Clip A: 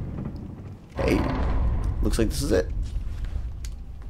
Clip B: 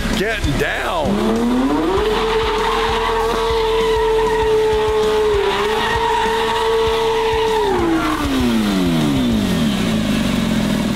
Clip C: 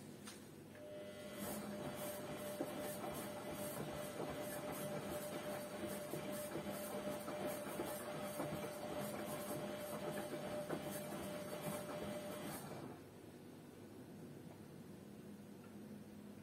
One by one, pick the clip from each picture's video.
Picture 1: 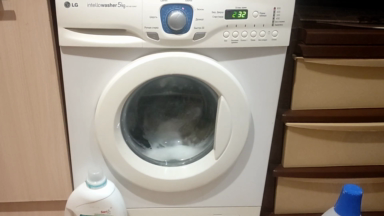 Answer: C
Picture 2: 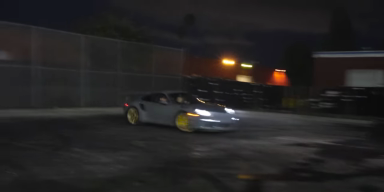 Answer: B